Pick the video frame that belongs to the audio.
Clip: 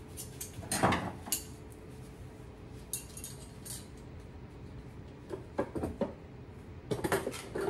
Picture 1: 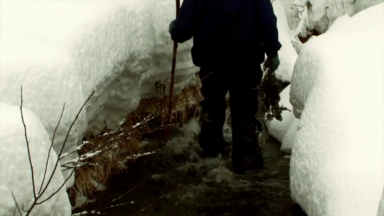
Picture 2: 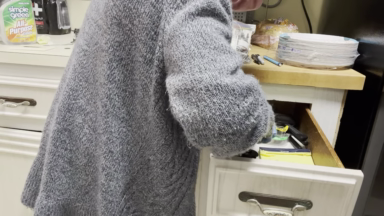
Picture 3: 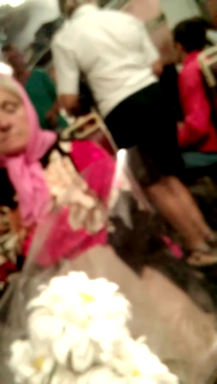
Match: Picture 2